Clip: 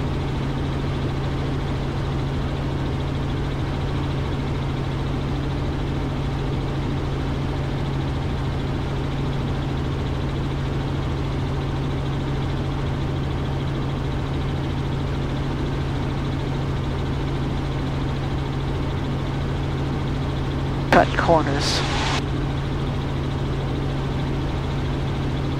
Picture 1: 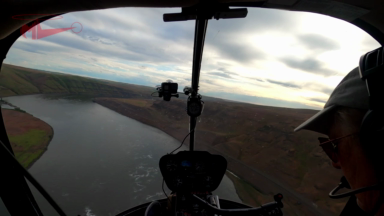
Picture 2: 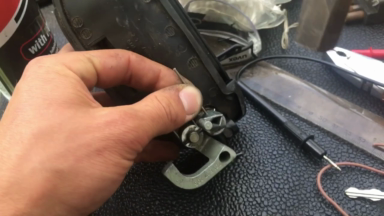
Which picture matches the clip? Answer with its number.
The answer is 1